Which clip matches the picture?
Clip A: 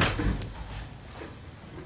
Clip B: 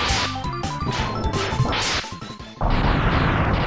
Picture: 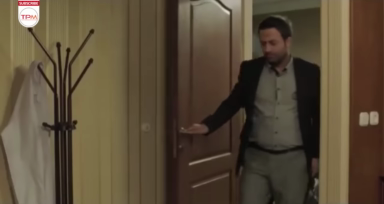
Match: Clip A